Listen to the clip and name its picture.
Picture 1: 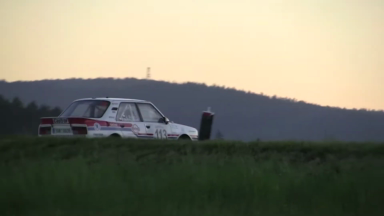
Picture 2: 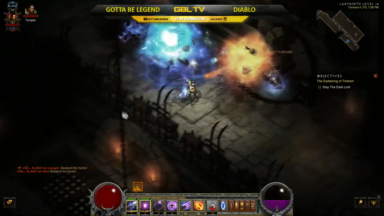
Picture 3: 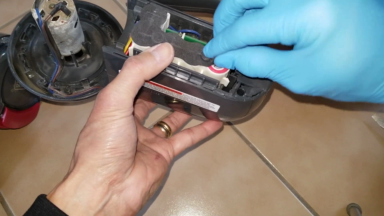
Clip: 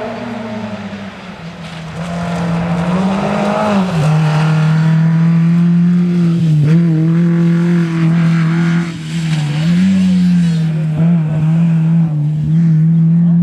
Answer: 1